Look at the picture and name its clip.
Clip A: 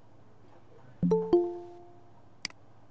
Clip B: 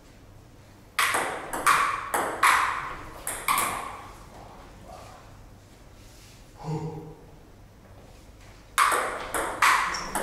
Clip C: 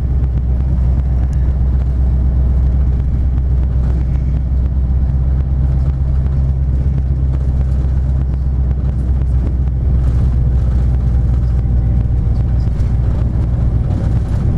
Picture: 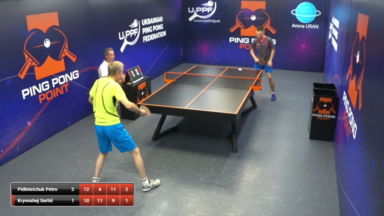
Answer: B